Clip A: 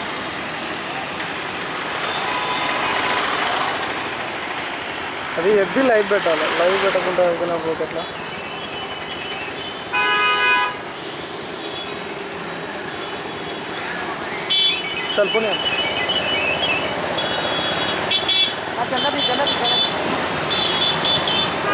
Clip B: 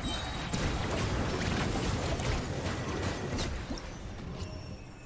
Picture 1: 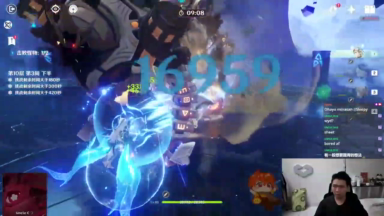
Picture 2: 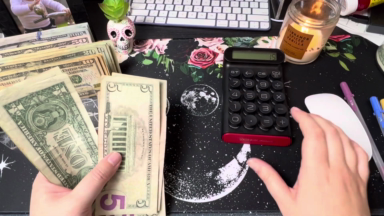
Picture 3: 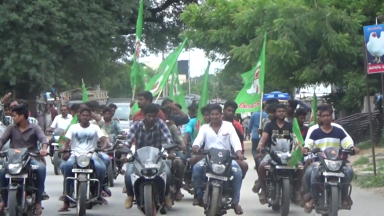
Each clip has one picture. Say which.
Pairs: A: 3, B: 1